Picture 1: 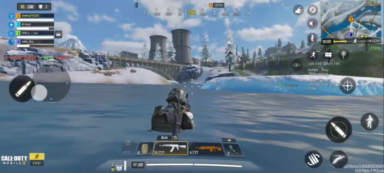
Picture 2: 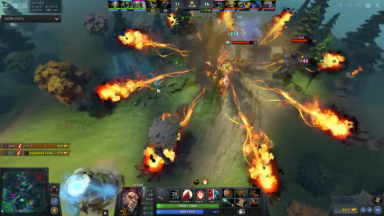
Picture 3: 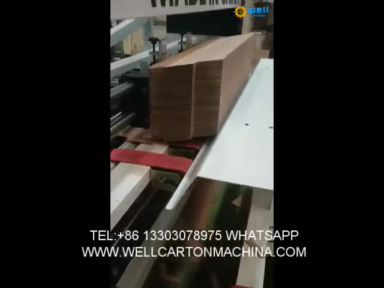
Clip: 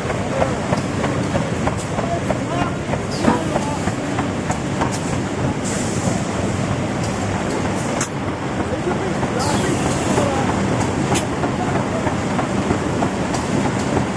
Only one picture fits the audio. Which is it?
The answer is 3